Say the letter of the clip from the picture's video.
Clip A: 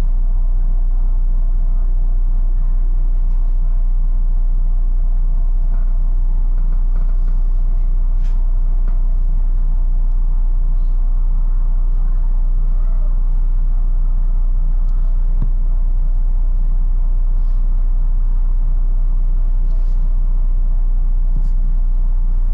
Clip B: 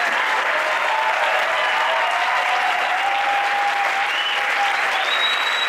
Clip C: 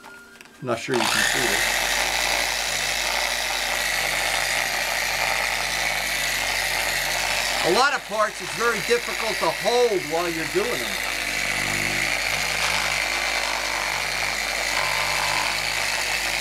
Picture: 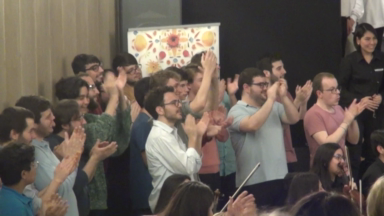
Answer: B